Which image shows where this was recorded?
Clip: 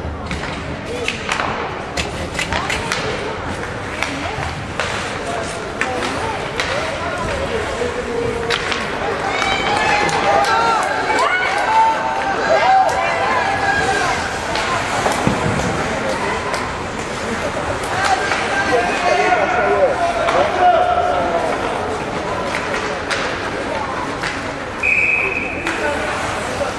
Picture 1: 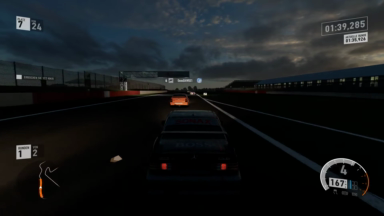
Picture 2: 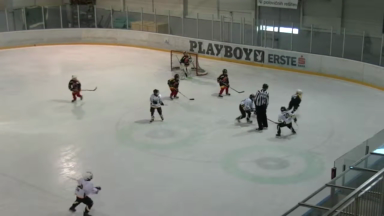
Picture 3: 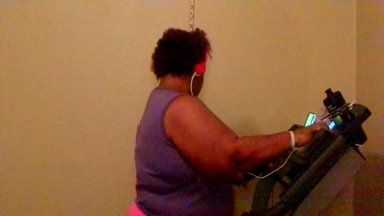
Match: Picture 2